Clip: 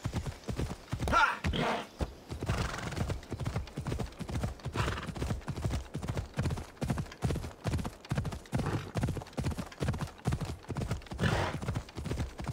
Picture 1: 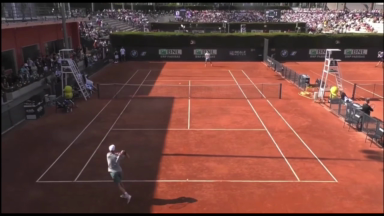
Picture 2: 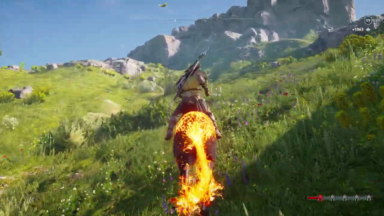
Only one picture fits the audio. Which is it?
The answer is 2